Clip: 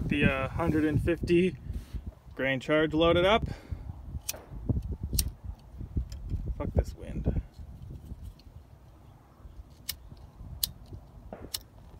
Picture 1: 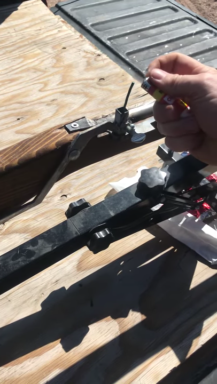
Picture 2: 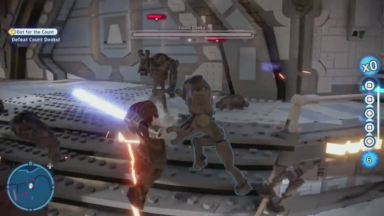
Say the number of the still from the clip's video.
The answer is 1